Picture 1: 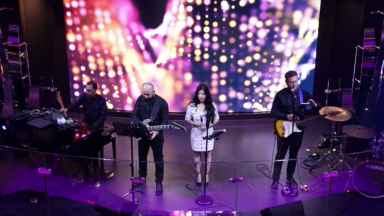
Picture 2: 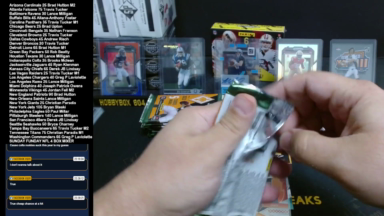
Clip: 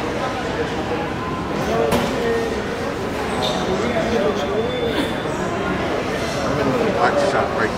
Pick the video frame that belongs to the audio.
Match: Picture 1